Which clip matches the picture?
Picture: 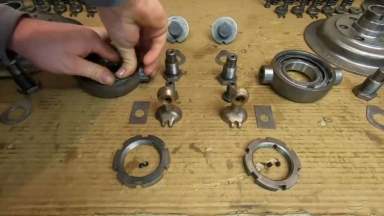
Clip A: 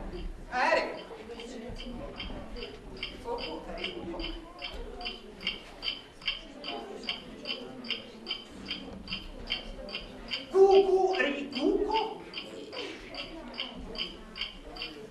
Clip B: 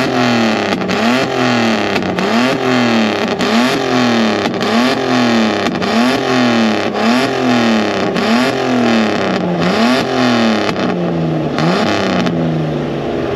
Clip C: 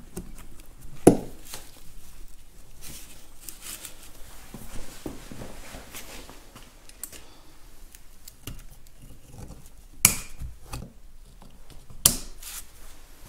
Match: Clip C